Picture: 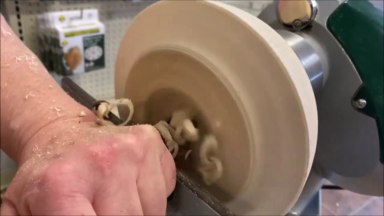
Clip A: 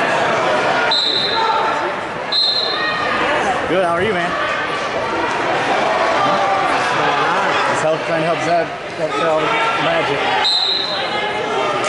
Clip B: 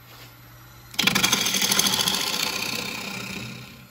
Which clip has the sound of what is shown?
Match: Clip B